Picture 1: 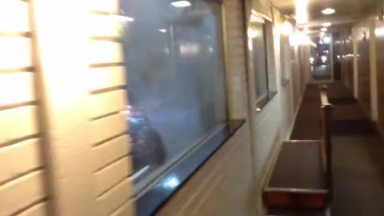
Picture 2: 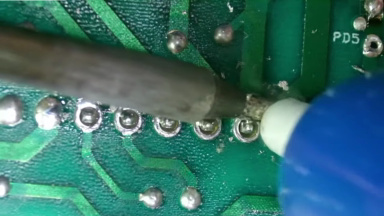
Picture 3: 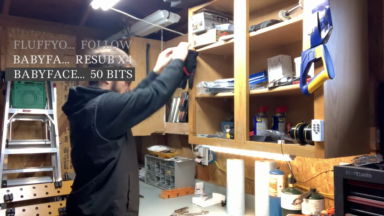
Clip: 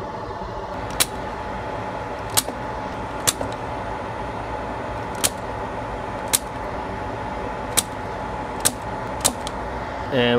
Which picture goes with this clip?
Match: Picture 2